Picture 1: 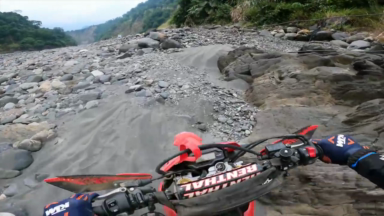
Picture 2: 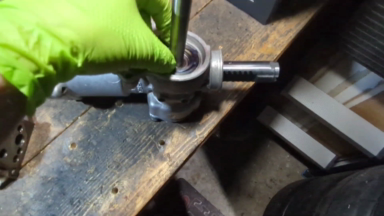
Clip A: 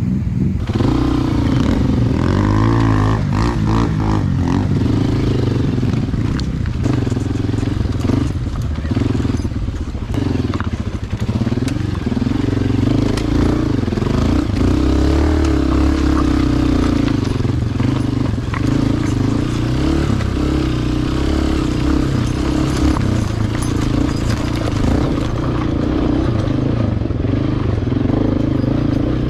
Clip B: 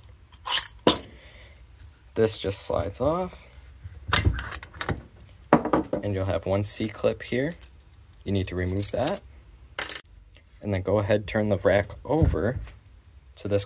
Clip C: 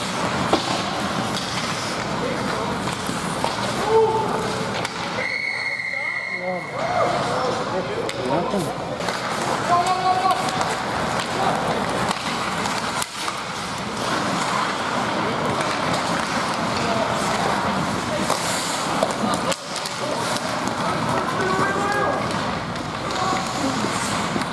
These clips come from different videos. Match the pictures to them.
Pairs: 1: A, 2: B